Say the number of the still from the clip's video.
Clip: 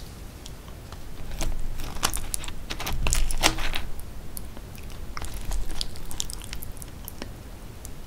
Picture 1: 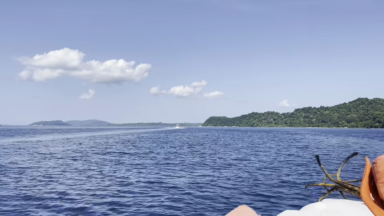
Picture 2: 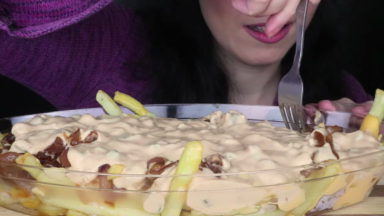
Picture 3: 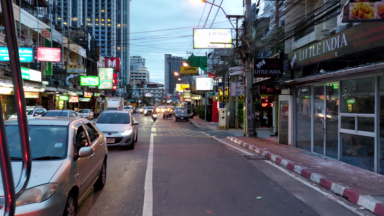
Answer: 2